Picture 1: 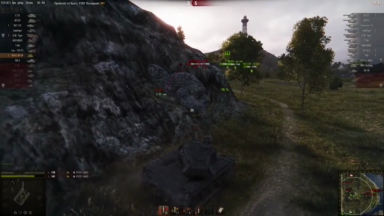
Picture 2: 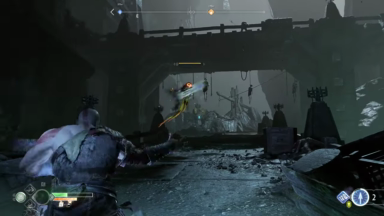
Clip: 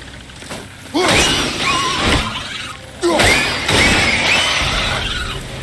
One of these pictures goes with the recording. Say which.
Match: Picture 2